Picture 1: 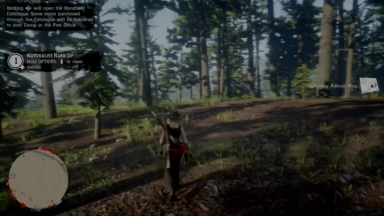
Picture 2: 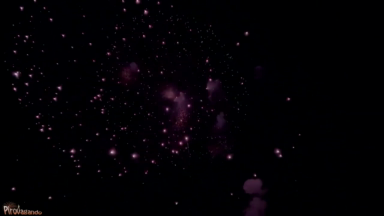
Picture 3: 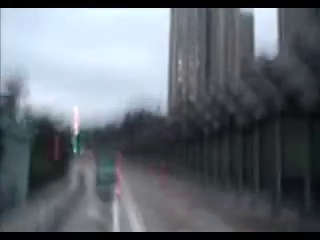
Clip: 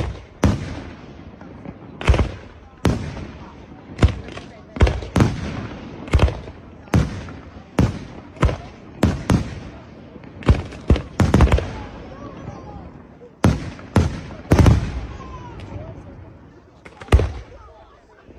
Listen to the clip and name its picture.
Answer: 2